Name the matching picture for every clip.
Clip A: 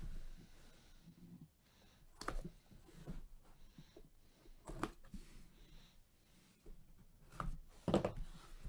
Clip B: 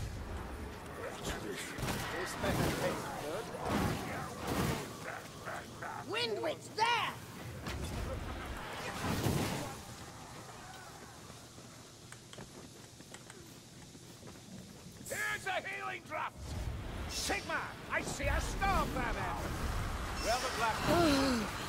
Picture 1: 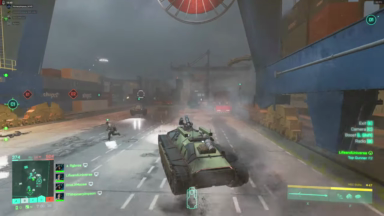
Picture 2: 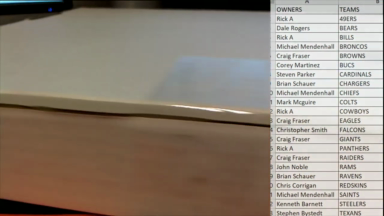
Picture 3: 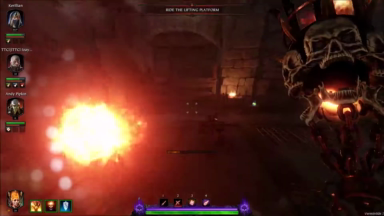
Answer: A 2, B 3